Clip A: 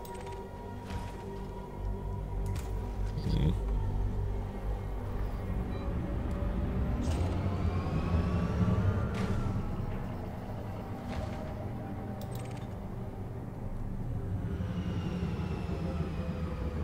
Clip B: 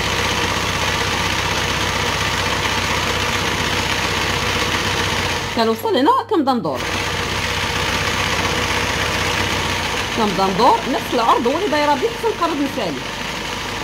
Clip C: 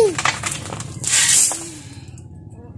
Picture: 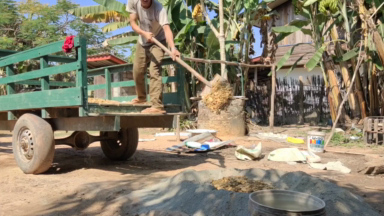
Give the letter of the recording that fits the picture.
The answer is C